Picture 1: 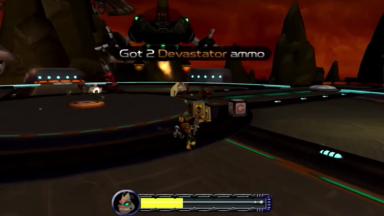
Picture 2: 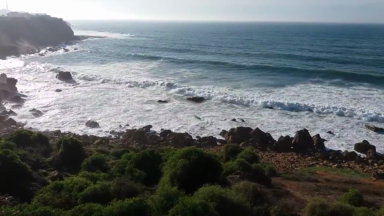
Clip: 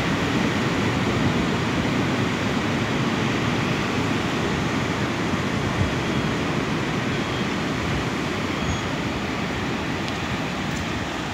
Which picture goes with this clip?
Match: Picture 2